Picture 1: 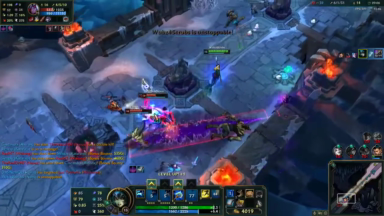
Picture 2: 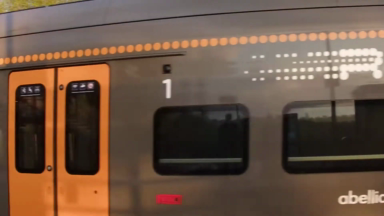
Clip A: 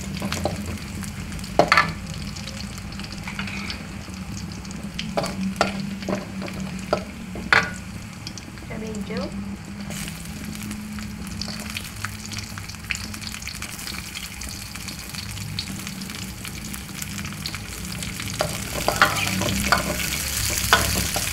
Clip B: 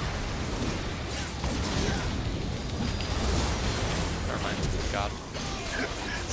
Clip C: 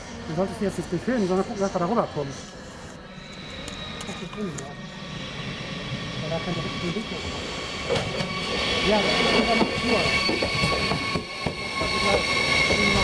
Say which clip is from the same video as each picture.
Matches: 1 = B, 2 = C